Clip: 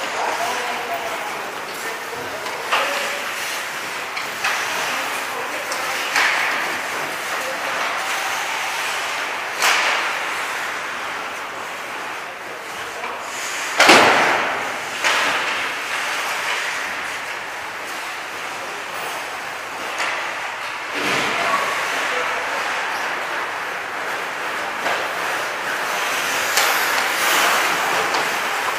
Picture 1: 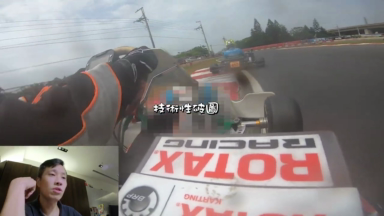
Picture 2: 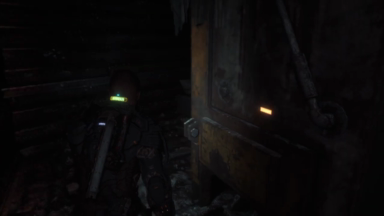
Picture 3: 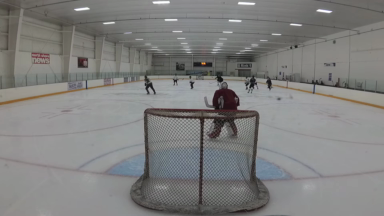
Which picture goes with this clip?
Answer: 3